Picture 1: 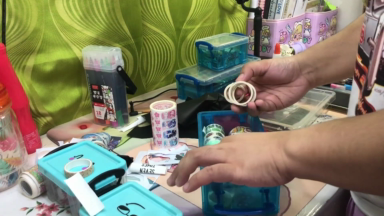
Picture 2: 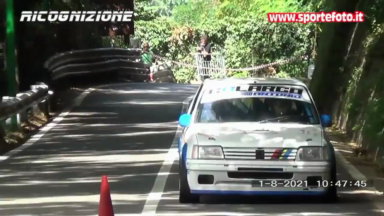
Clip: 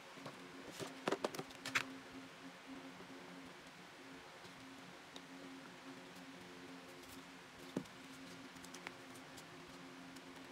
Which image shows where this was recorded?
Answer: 1